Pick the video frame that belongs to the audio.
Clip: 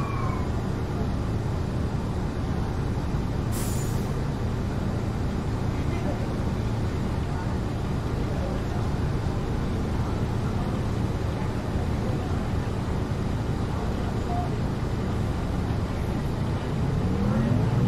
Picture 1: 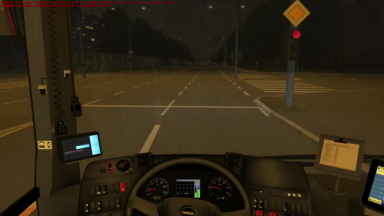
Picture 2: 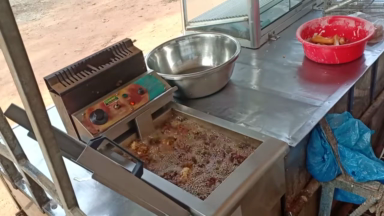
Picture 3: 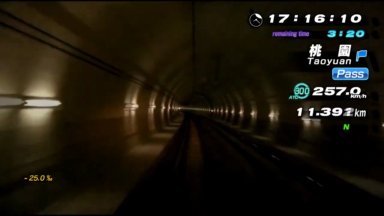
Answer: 1